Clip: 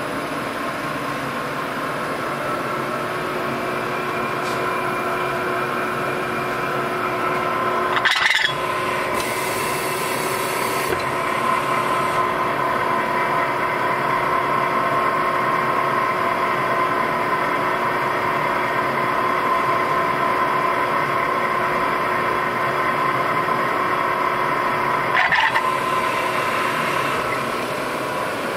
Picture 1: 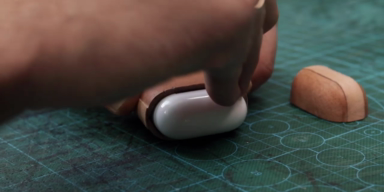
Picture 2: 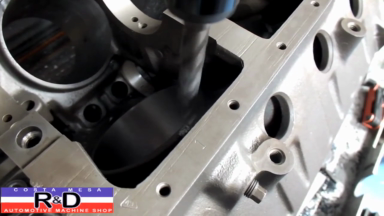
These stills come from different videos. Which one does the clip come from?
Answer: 2